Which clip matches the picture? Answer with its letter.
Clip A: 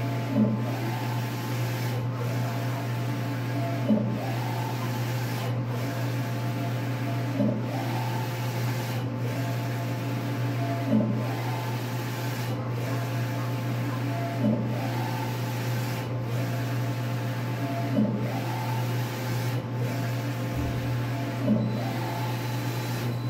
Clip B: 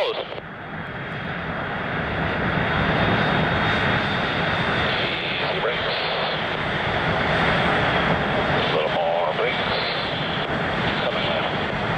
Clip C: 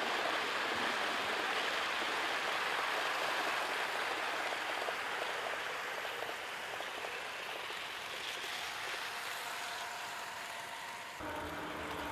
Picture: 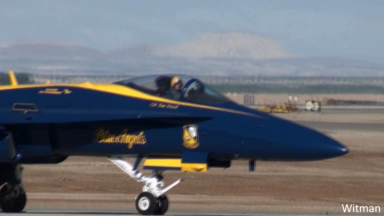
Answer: B